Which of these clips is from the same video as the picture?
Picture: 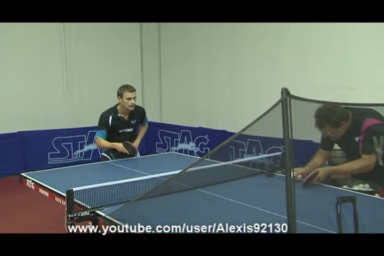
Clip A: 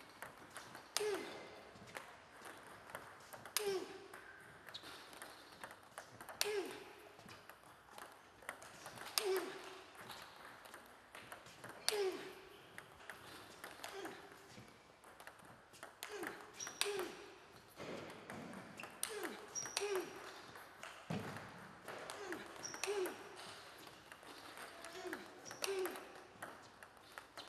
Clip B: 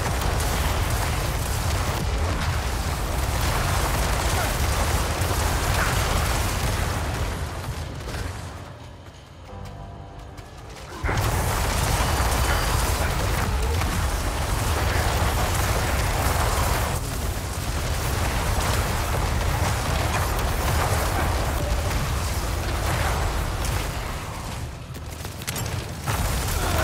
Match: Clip A